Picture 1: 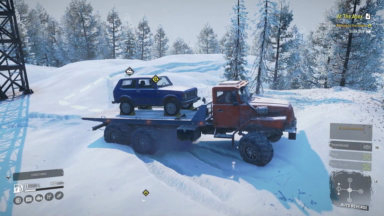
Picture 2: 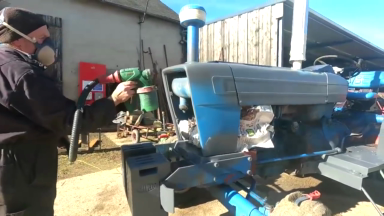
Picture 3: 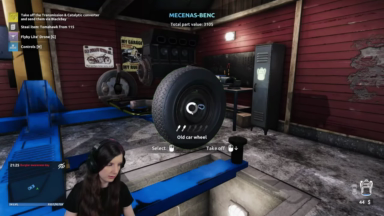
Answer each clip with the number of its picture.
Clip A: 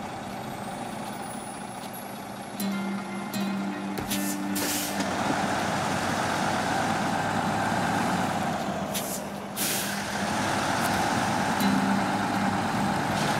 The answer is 1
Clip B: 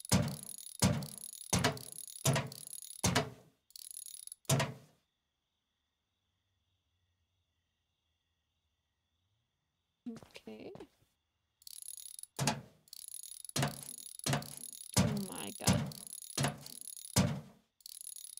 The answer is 3